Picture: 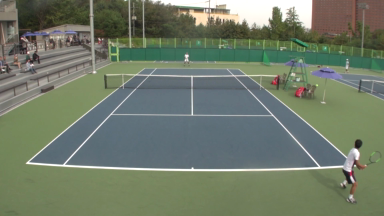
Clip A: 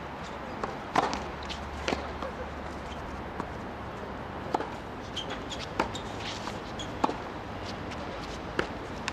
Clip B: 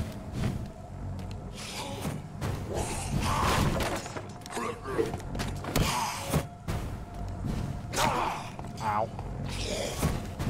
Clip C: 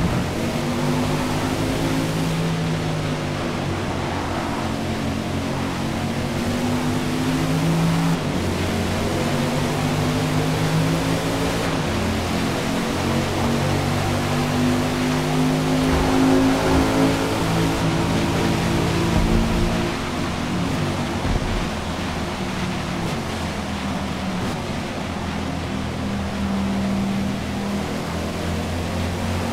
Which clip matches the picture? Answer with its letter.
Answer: A